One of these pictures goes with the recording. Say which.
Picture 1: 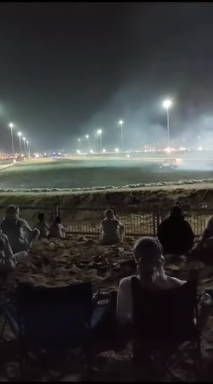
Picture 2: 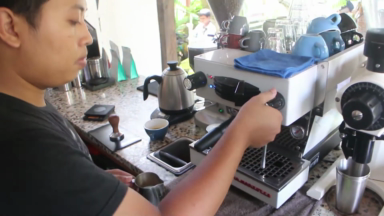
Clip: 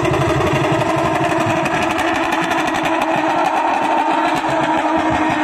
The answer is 1